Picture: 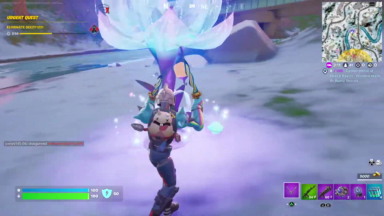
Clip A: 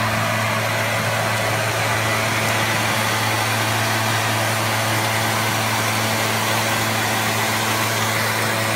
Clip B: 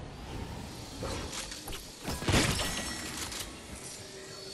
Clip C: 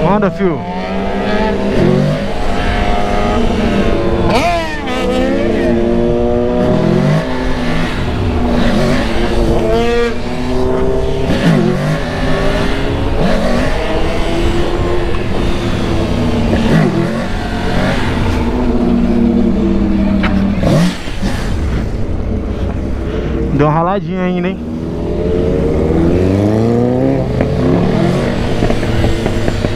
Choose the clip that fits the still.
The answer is B